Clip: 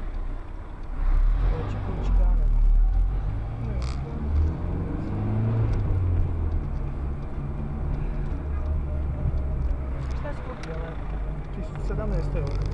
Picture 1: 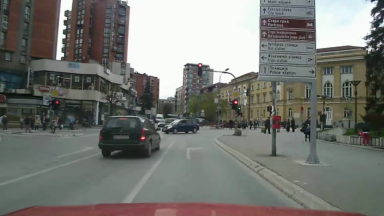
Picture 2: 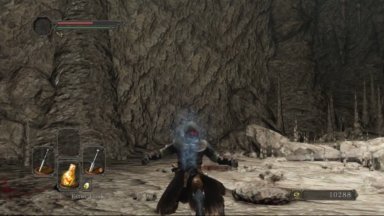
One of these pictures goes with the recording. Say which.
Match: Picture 1